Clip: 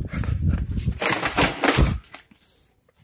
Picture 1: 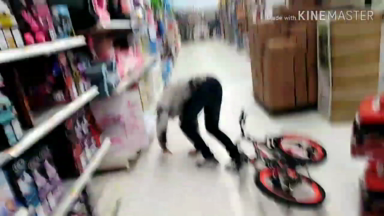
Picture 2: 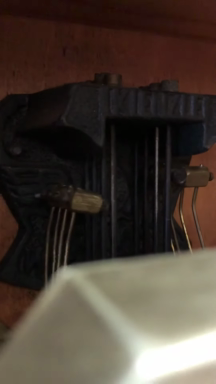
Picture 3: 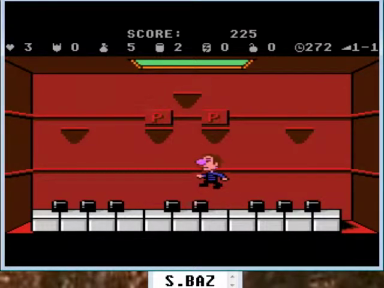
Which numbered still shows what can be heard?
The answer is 1